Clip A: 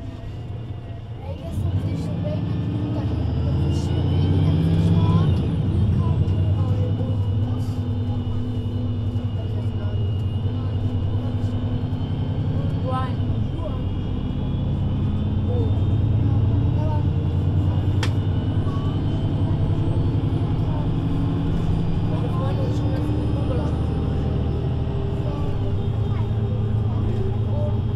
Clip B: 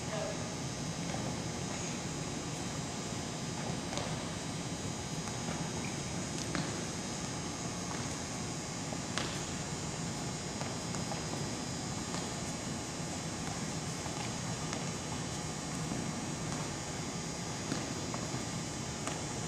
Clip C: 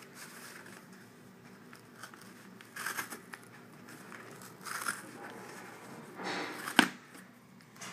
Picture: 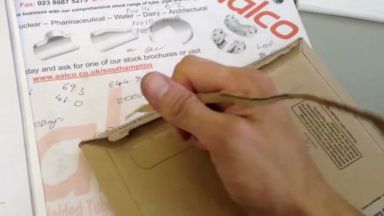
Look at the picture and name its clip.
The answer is C